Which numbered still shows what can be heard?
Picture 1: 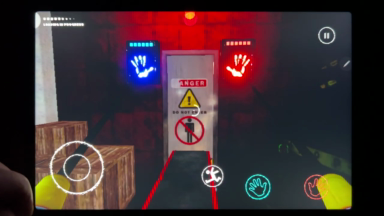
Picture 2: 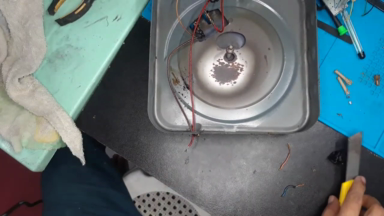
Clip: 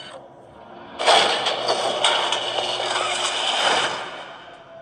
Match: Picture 1